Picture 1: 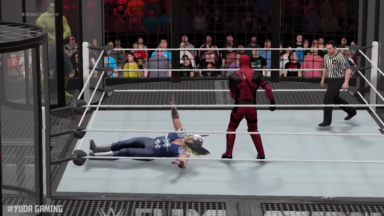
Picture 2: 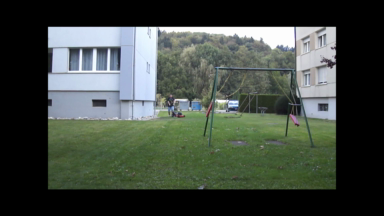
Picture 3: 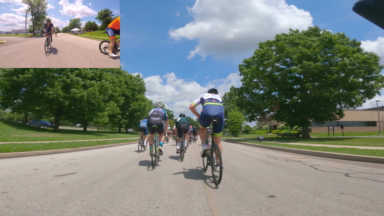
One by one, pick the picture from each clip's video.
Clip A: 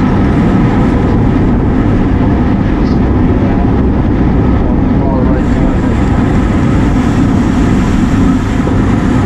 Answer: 3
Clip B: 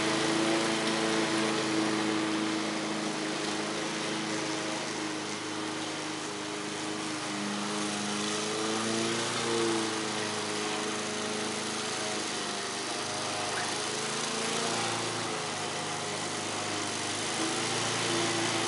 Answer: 2